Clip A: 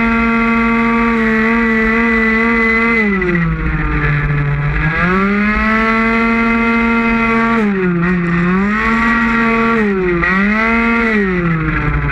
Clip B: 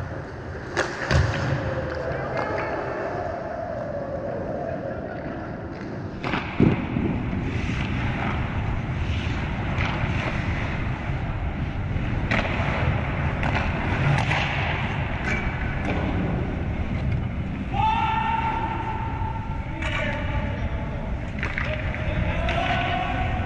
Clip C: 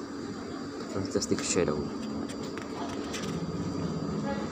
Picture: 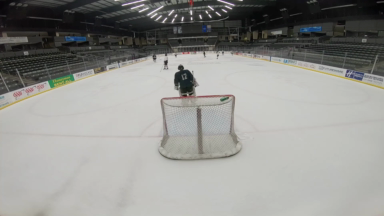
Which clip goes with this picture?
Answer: B